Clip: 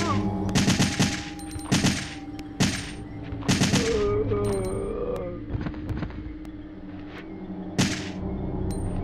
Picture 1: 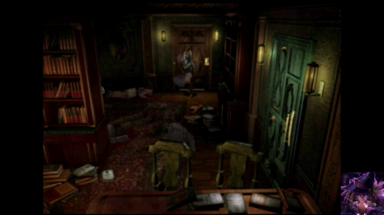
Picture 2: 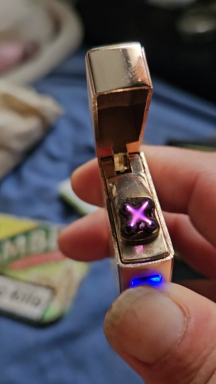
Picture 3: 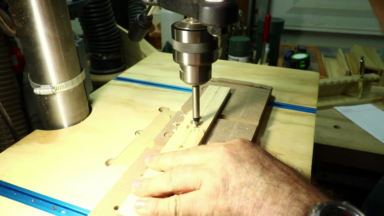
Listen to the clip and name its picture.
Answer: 1